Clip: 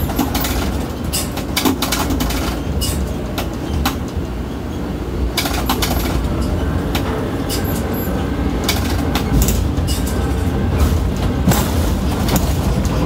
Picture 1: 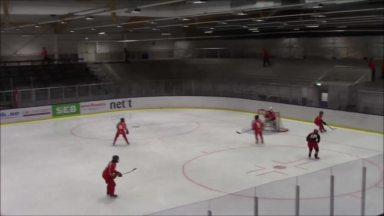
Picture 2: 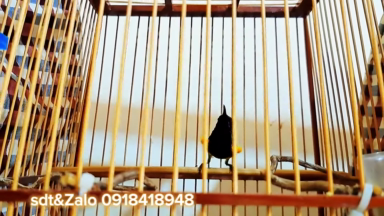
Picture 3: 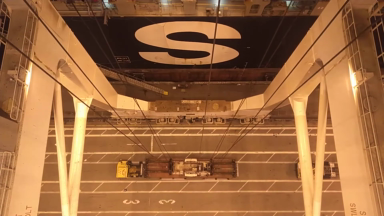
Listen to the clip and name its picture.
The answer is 3